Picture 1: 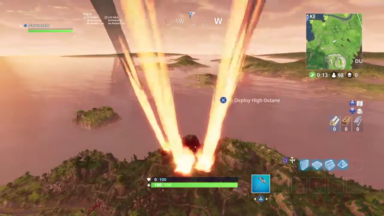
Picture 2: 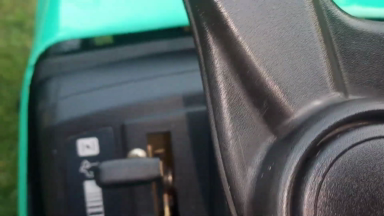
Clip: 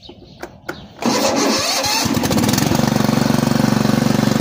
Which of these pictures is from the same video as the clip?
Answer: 2